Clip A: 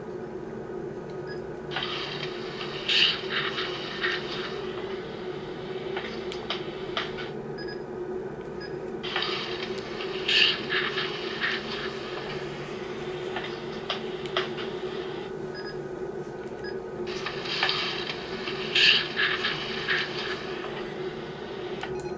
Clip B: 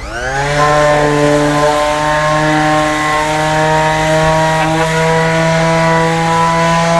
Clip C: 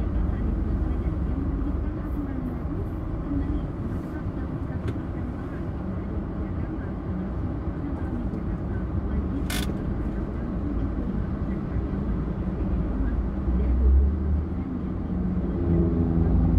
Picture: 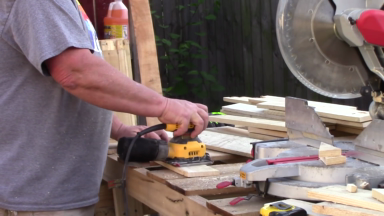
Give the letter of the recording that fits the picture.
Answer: B